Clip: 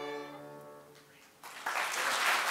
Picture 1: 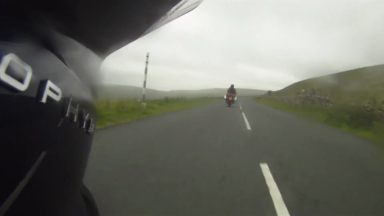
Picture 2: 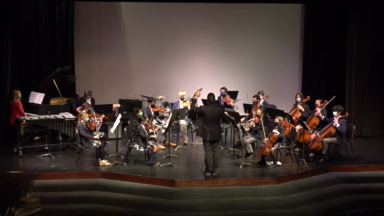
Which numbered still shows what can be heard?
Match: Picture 2